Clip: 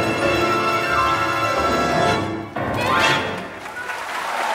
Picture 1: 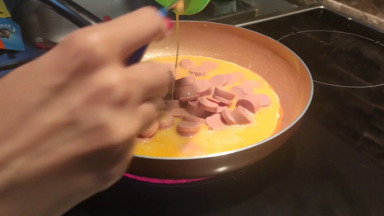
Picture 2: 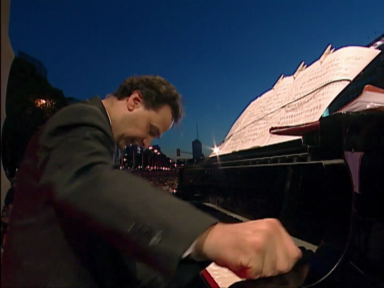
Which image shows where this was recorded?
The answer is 2